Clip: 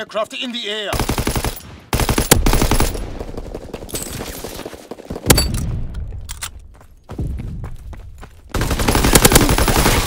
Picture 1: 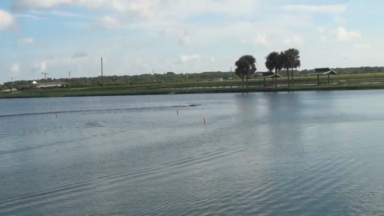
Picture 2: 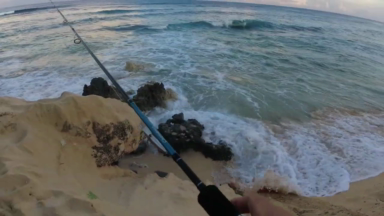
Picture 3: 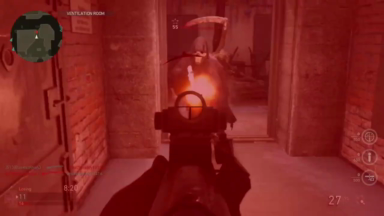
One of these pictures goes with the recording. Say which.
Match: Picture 3